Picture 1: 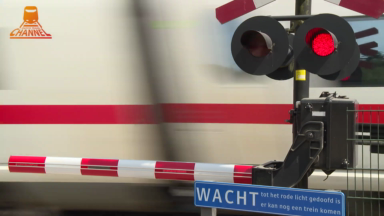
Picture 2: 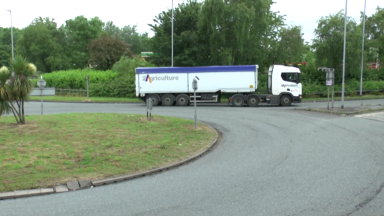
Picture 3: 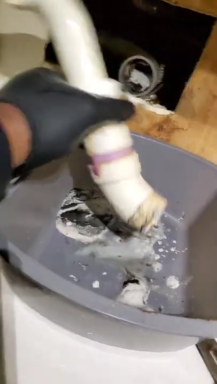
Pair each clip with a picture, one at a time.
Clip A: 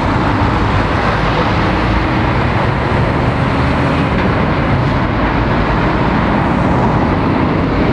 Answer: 2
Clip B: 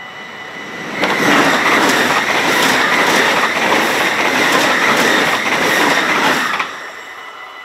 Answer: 1